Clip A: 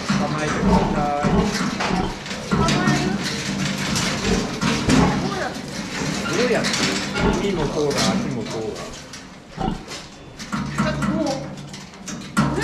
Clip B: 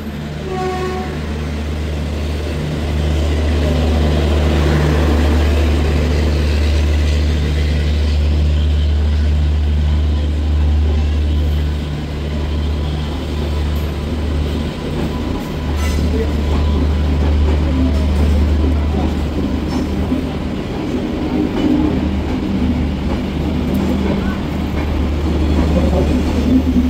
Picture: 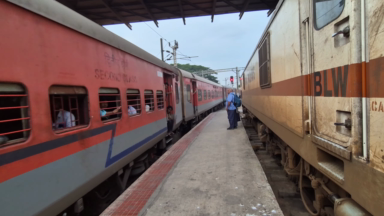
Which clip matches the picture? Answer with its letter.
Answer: B